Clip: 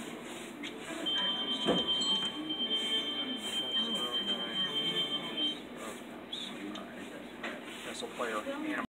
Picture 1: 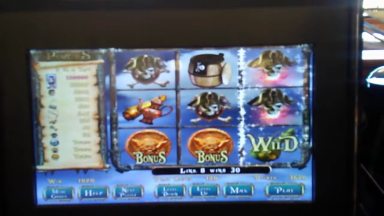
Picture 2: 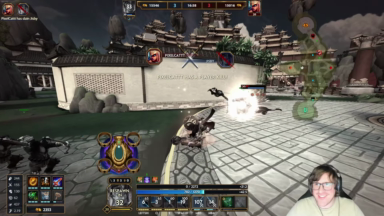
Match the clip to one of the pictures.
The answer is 1